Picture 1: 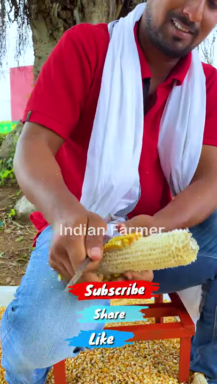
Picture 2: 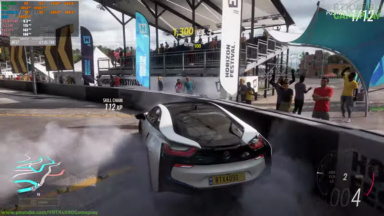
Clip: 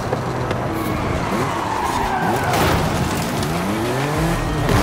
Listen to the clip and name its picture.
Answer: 2